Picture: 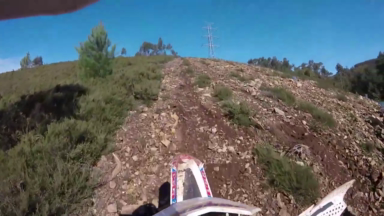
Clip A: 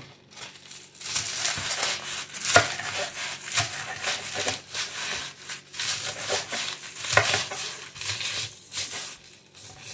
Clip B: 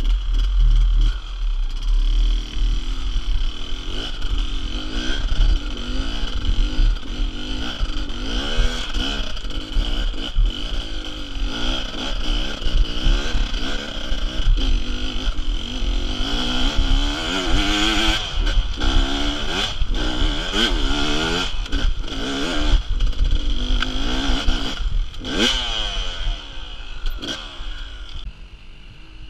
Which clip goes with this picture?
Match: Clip B